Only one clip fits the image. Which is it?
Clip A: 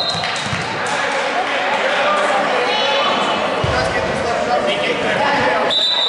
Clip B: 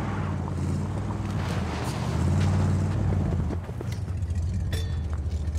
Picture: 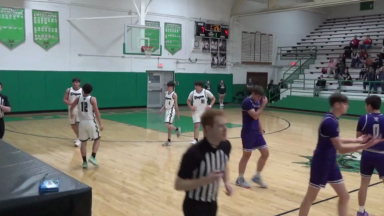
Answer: A